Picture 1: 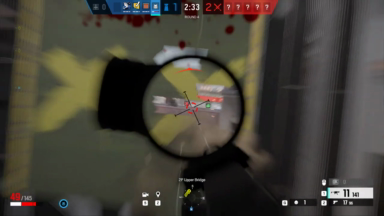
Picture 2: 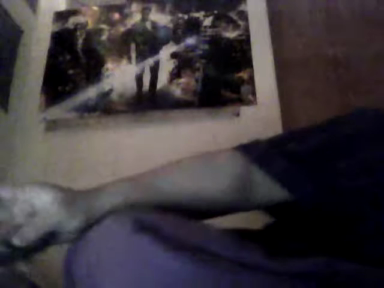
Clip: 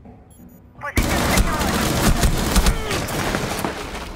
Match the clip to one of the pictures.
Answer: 1